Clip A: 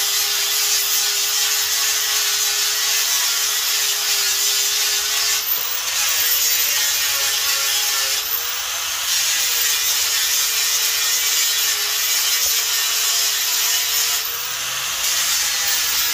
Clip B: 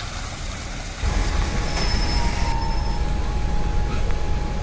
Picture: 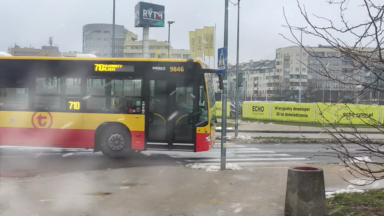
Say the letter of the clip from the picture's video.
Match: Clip B